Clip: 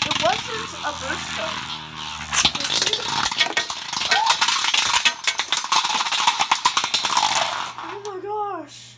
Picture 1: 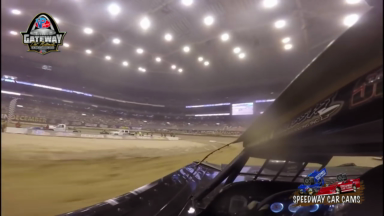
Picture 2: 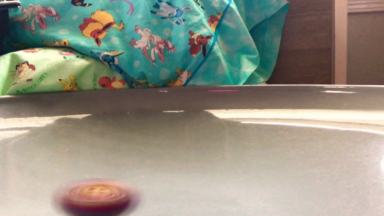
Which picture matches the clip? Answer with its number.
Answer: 2